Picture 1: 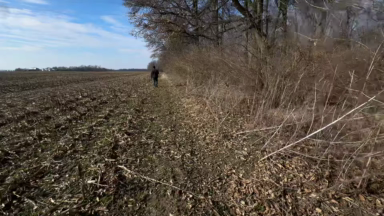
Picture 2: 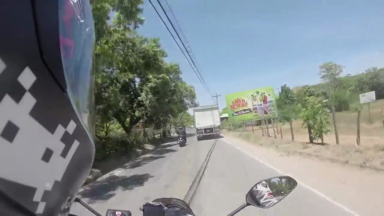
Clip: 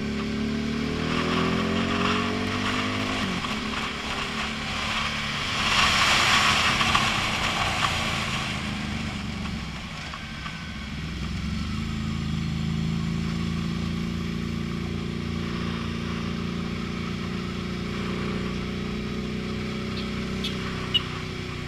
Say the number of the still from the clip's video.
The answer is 2